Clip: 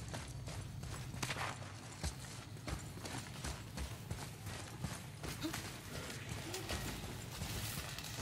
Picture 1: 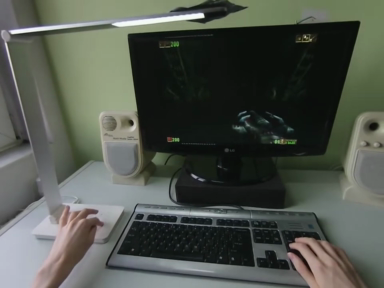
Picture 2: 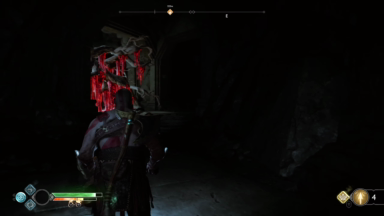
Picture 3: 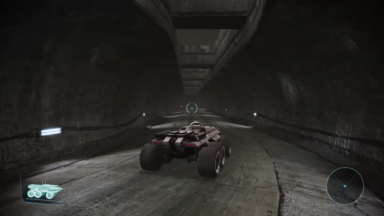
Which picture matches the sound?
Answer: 2